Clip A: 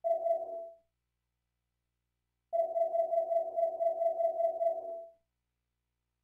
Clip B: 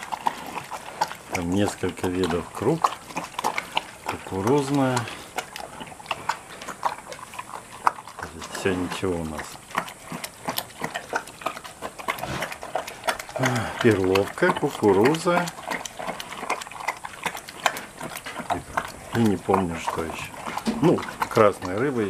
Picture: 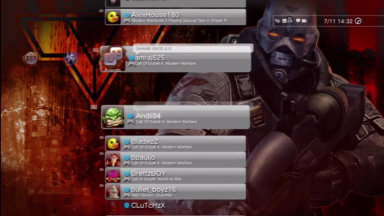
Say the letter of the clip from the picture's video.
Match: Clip A